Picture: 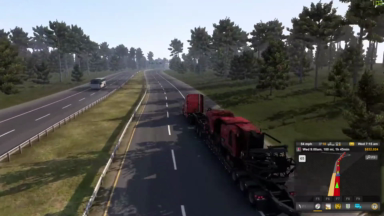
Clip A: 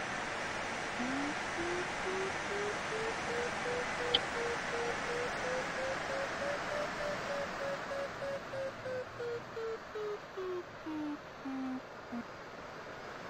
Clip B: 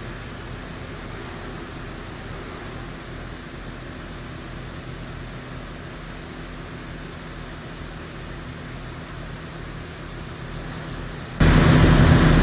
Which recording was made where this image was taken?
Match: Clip B